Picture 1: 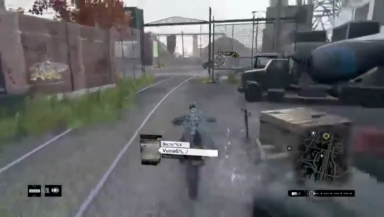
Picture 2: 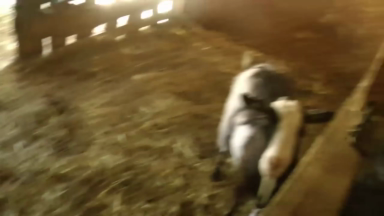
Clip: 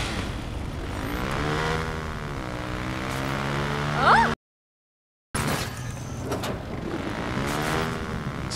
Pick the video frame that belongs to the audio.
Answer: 1